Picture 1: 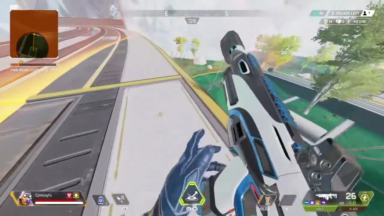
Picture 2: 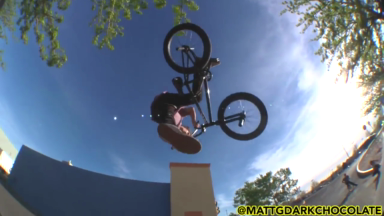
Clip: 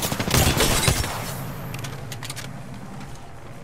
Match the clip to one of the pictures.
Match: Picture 1